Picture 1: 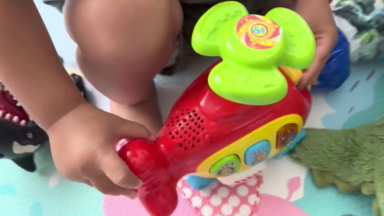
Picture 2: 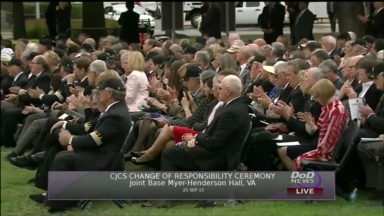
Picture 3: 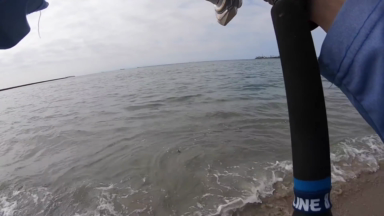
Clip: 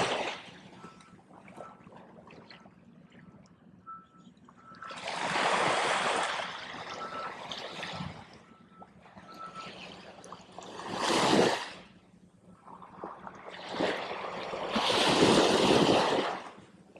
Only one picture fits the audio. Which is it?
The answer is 3